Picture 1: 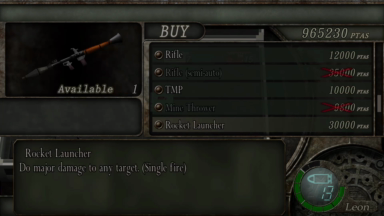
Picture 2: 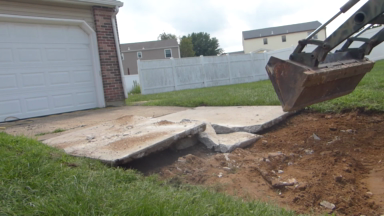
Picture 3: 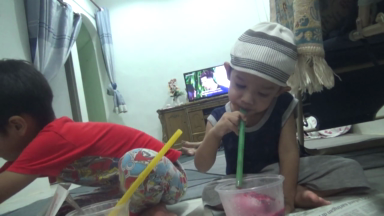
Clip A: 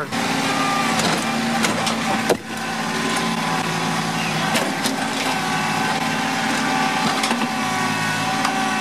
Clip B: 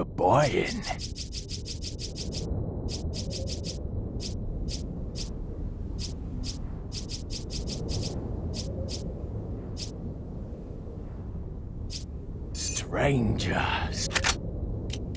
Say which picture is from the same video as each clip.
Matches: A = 2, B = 1